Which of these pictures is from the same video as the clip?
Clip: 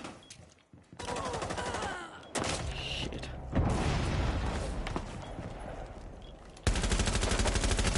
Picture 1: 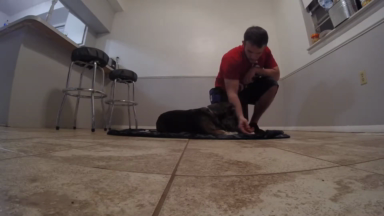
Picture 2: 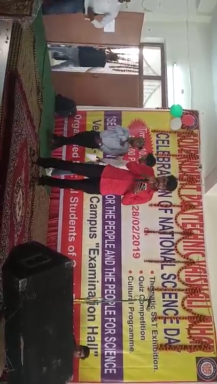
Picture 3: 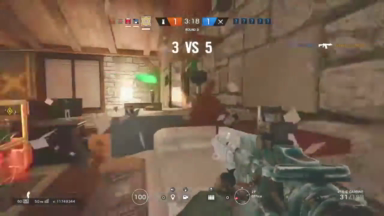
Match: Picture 3